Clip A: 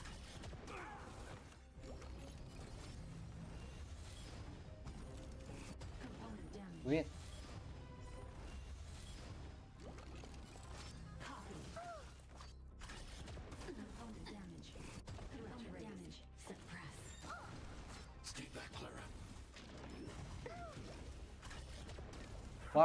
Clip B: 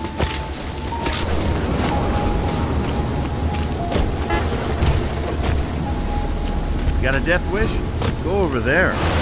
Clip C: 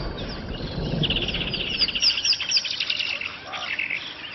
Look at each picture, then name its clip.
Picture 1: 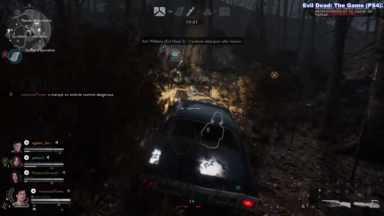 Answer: B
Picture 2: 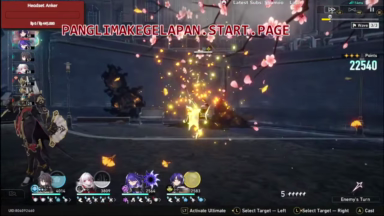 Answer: A